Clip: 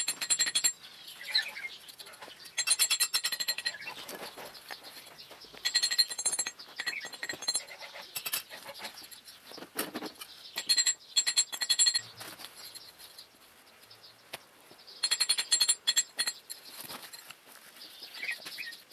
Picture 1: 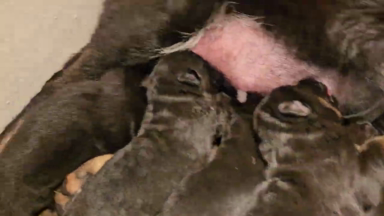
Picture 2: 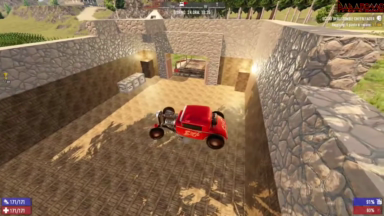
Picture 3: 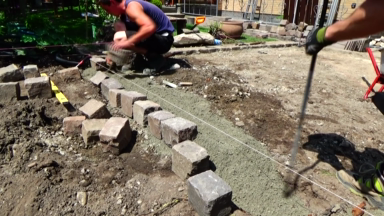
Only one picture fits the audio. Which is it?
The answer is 3